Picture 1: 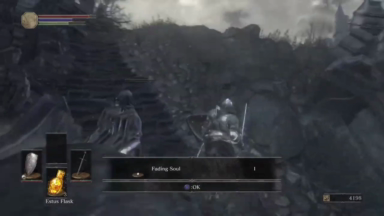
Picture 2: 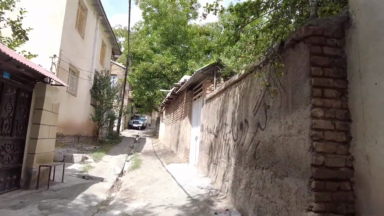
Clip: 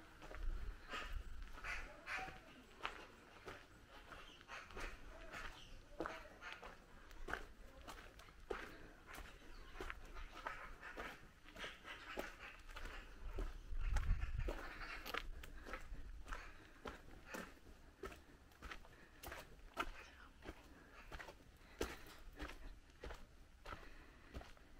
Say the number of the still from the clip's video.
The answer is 2